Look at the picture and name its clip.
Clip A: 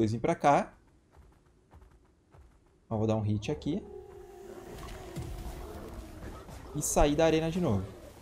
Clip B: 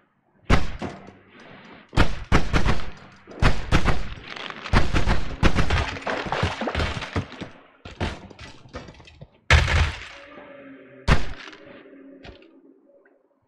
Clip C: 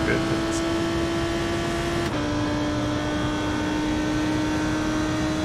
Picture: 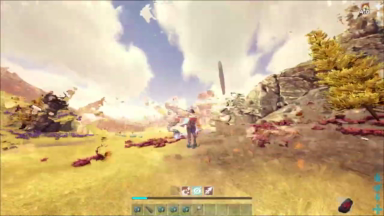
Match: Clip A